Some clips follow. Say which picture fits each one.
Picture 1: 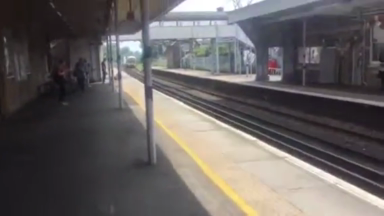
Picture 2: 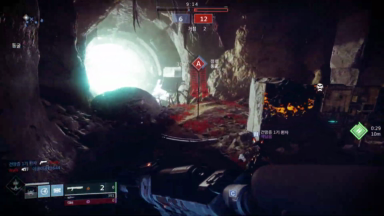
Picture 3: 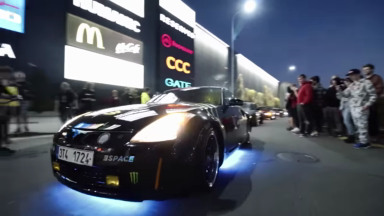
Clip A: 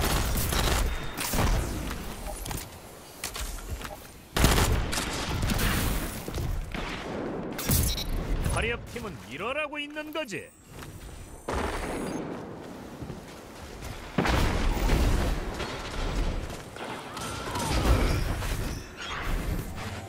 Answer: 2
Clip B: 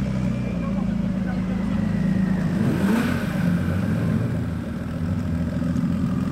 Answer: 3